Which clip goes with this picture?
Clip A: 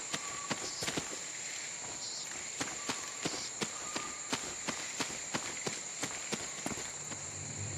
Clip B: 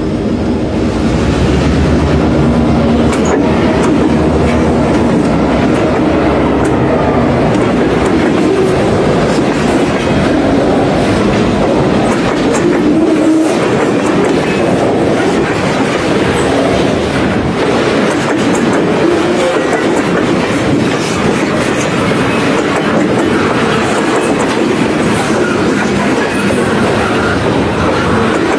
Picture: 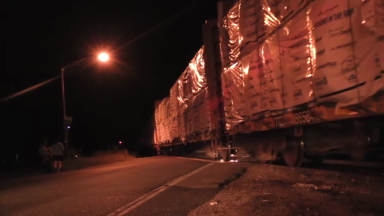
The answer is B